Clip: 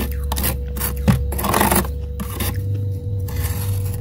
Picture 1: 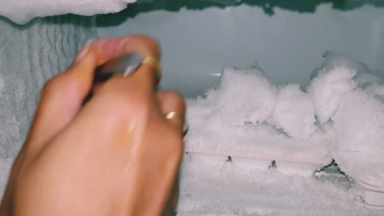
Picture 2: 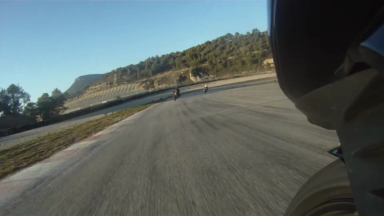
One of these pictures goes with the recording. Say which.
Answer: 1